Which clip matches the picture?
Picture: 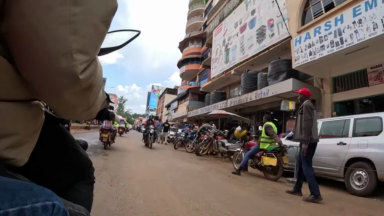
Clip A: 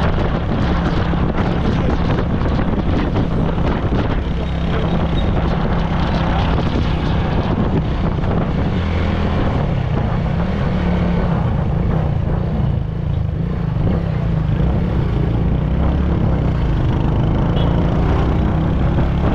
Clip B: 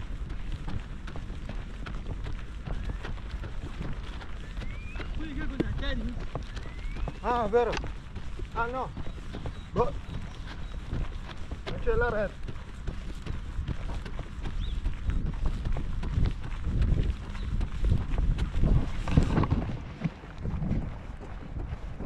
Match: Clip A